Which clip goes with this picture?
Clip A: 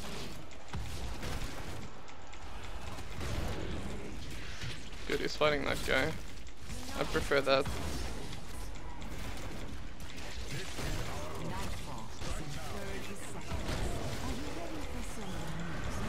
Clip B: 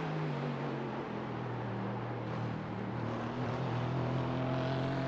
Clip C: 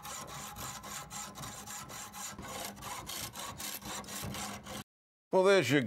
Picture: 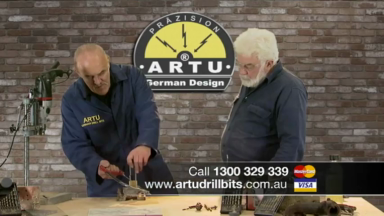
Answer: C